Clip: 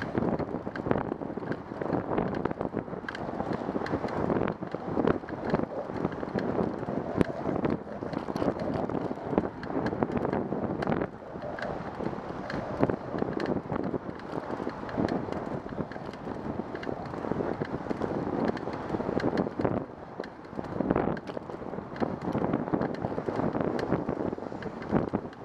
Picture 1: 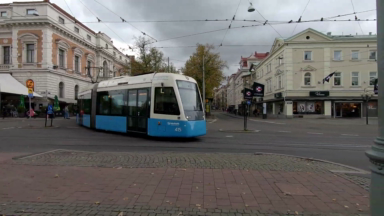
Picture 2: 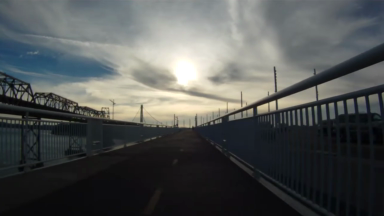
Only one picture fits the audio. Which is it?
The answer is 2